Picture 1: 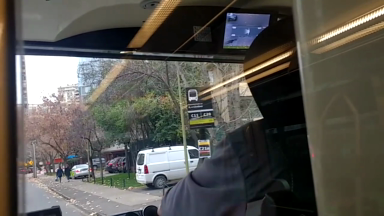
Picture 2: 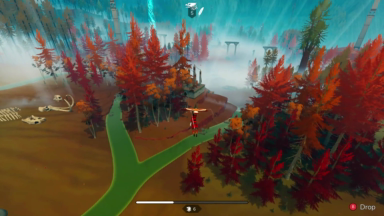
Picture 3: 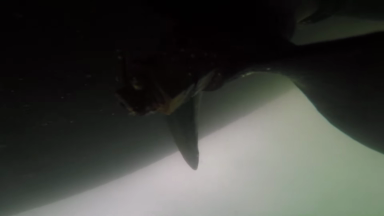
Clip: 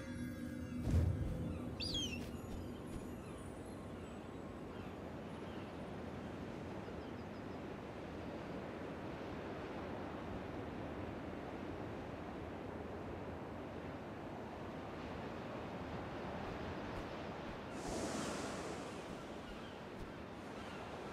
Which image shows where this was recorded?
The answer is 2